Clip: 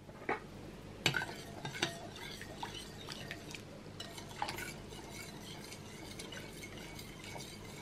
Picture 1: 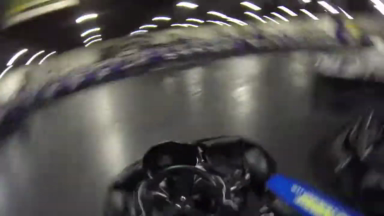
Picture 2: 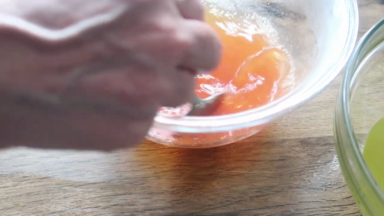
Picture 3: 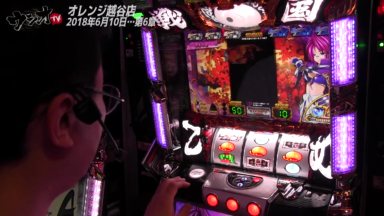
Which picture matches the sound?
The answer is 2